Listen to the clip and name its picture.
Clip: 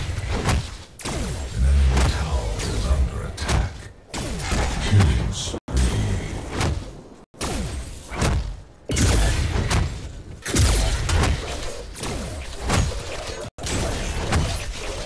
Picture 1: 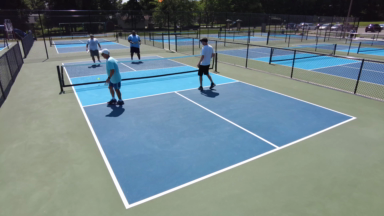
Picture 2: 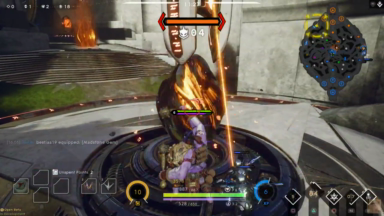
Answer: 2